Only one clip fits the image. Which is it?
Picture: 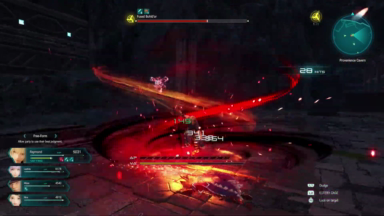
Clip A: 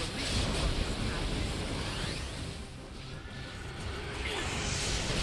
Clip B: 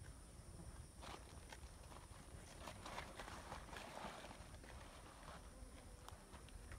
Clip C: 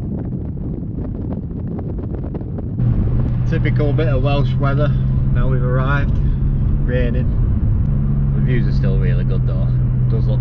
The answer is A